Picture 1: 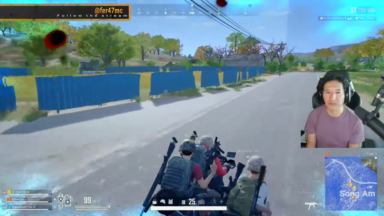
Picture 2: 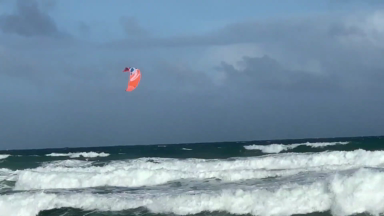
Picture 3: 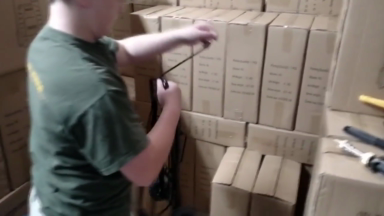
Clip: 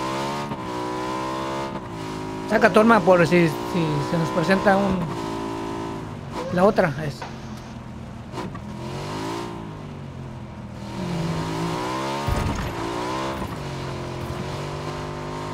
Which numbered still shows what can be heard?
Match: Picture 1